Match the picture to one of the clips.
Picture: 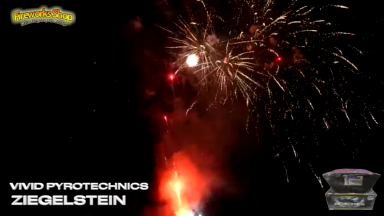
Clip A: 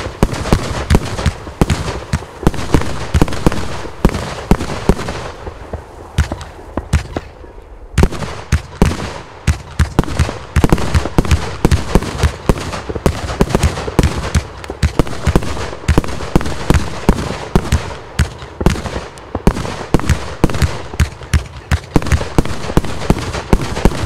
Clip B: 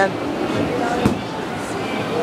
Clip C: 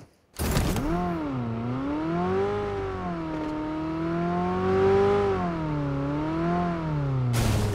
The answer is A